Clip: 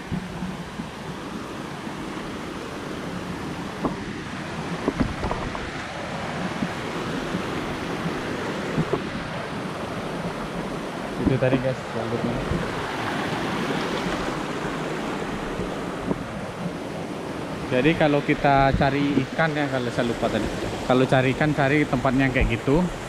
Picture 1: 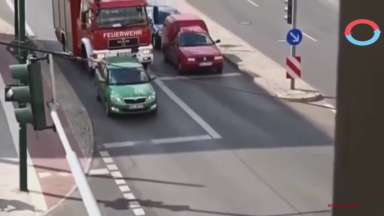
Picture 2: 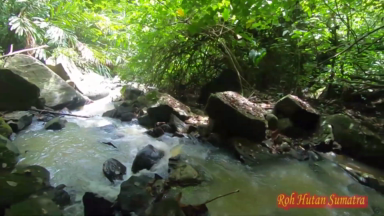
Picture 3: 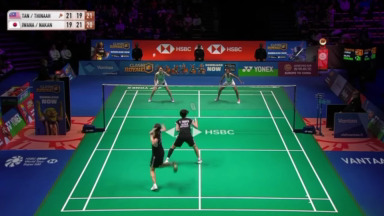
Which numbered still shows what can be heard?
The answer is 2